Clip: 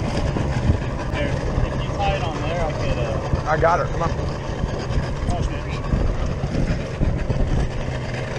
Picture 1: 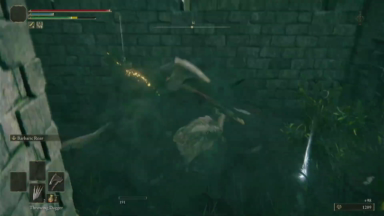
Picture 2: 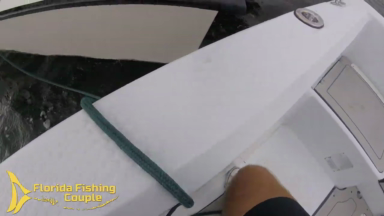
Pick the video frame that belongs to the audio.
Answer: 2